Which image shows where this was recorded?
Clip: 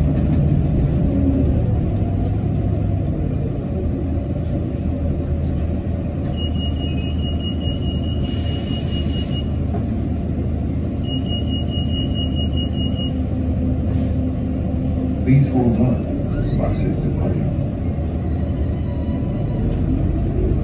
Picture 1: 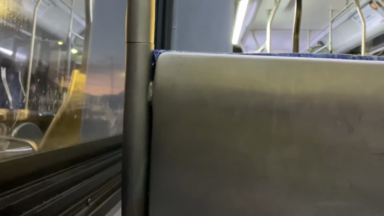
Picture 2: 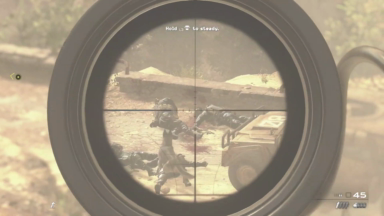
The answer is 1